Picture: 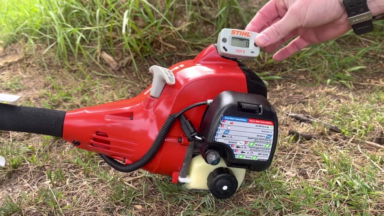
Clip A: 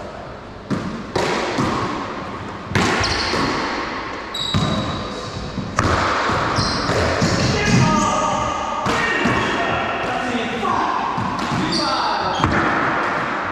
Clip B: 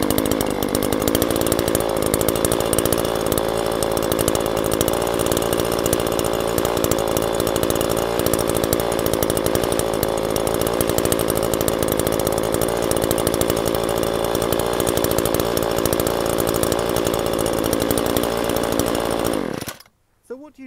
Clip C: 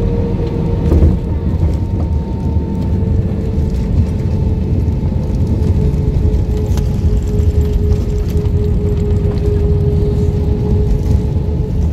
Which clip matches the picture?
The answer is B